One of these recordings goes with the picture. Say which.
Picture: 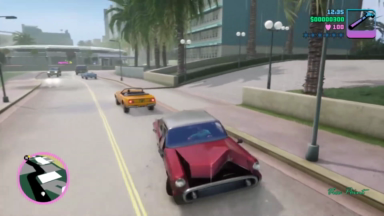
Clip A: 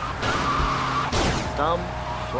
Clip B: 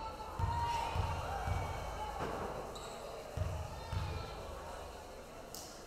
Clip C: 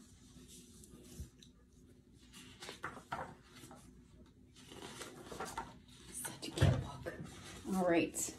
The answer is A